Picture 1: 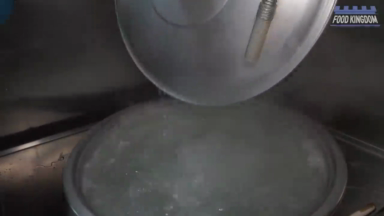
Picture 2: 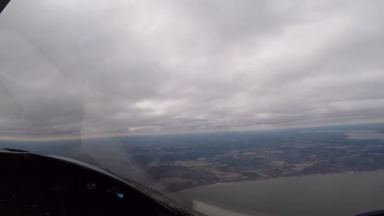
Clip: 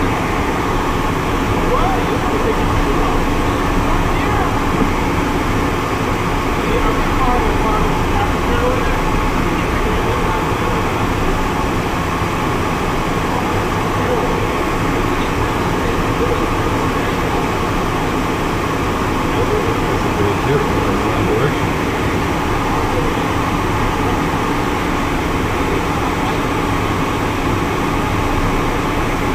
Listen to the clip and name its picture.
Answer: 2